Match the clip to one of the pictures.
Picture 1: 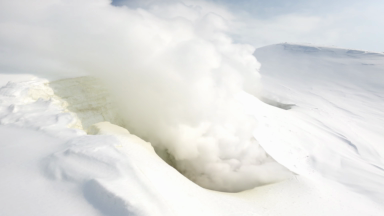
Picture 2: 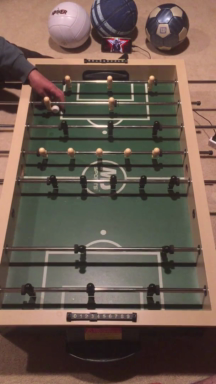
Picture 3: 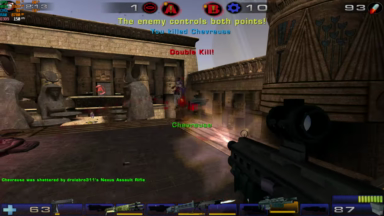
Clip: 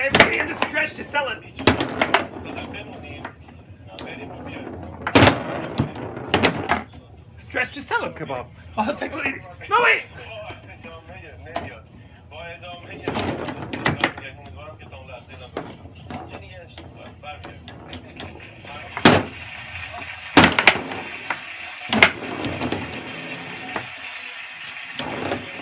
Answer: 2